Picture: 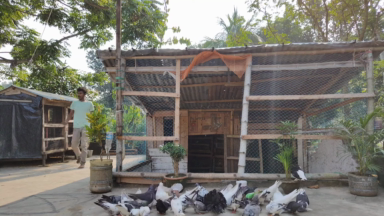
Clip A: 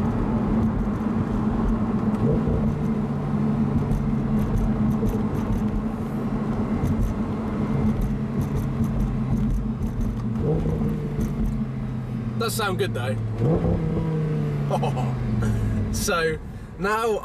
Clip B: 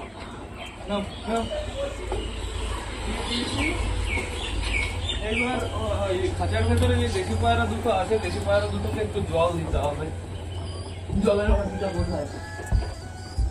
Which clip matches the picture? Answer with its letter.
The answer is B